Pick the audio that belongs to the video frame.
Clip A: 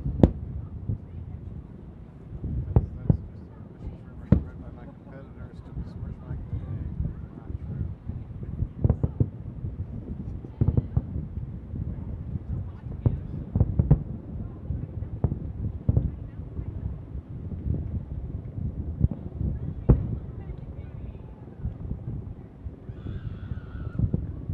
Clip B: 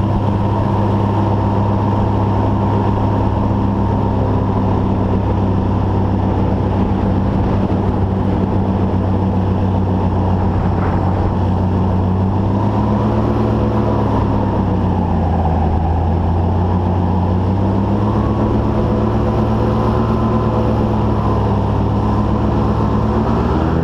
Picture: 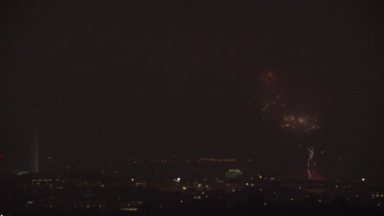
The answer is A